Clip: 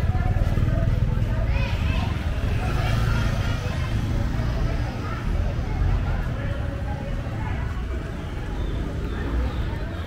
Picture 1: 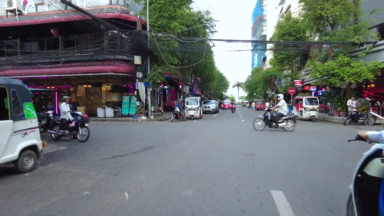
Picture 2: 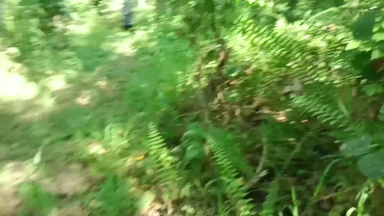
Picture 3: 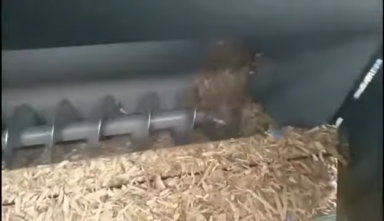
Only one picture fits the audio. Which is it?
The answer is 1